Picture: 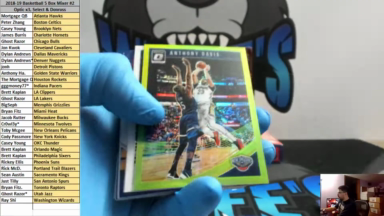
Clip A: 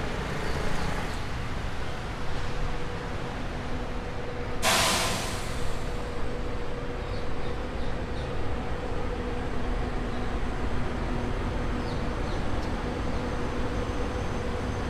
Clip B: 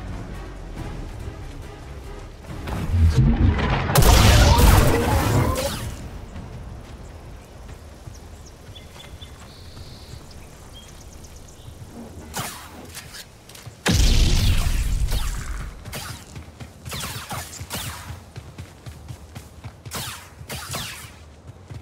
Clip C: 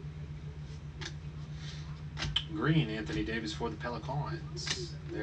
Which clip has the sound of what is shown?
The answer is C